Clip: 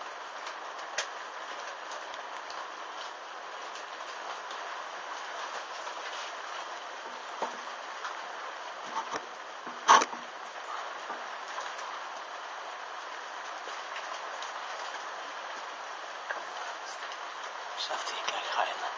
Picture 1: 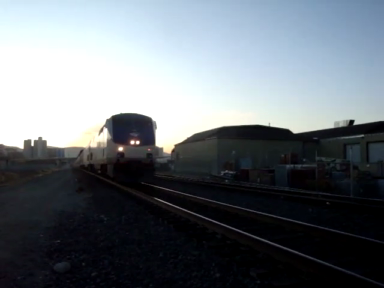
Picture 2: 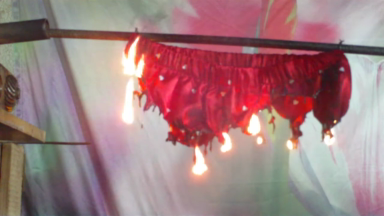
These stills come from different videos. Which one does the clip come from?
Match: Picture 2